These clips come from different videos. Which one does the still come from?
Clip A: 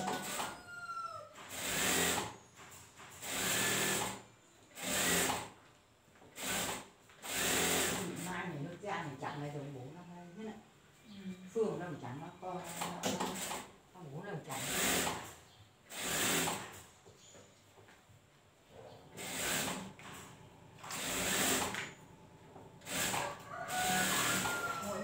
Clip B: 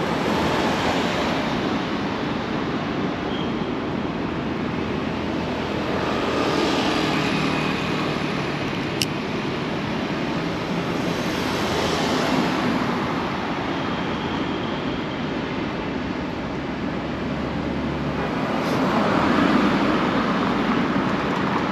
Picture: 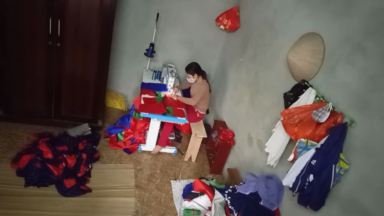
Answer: A